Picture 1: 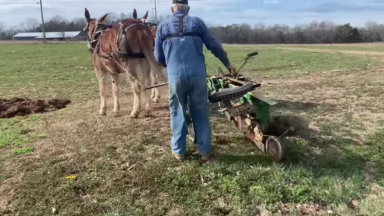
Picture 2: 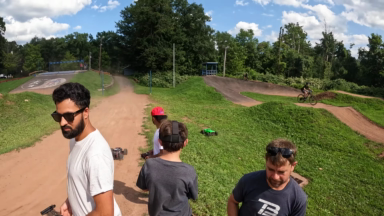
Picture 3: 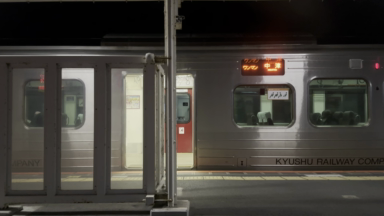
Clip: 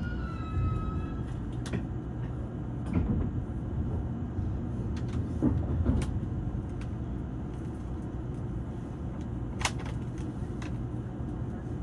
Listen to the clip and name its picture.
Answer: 3